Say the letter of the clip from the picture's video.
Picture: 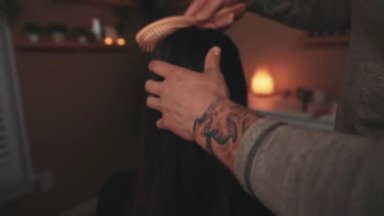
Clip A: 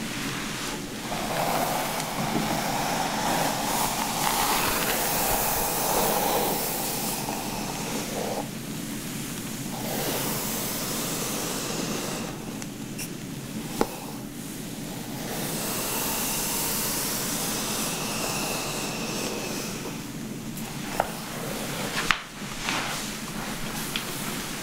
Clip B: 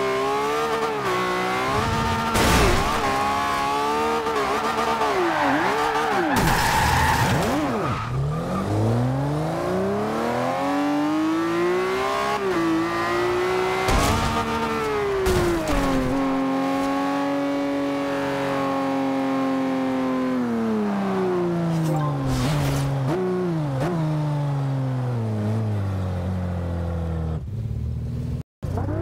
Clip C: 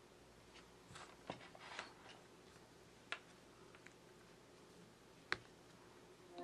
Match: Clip A